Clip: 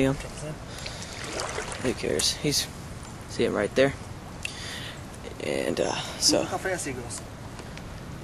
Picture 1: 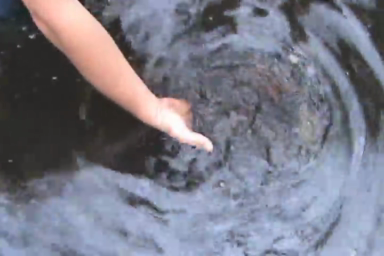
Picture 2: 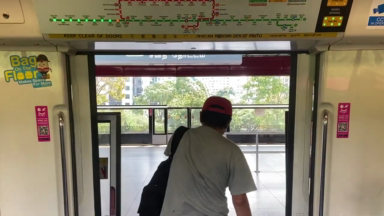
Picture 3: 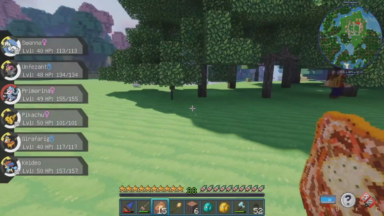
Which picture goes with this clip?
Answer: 1